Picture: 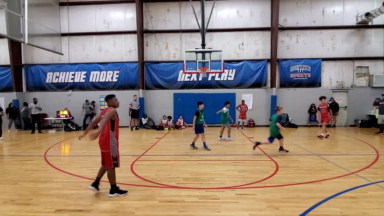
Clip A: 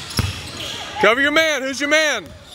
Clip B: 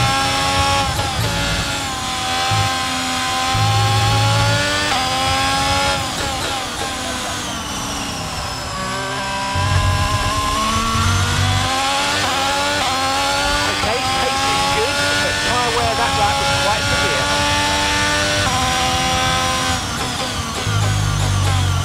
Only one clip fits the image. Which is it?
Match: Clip A